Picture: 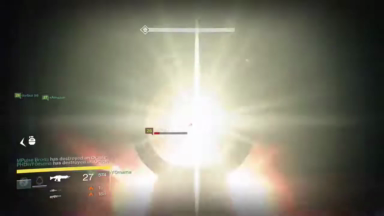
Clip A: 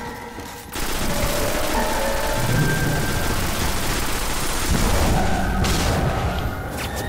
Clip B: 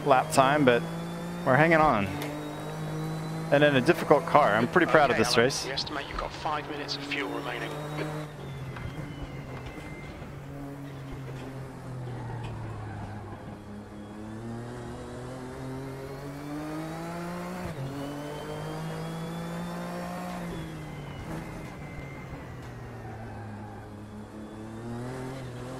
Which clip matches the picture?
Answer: A